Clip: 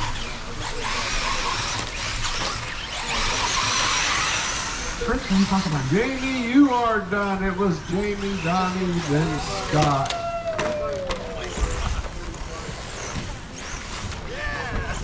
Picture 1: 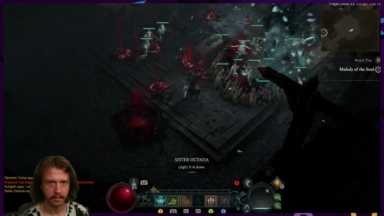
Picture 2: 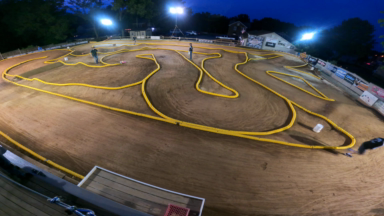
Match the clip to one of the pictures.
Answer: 2